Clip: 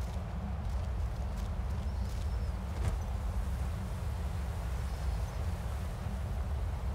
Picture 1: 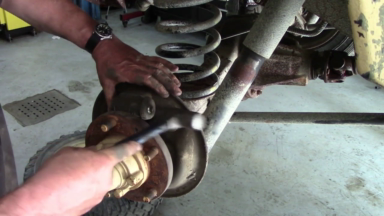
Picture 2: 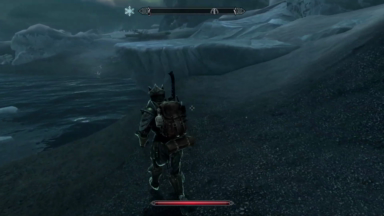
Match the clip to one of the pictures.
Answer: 2